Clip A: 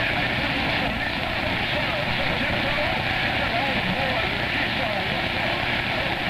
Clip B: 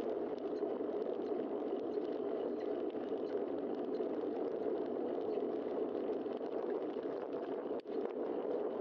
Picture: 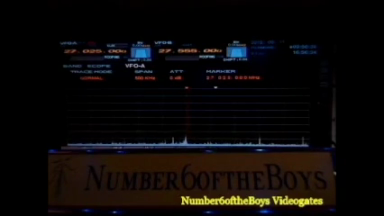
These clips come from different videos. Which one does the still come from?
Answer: A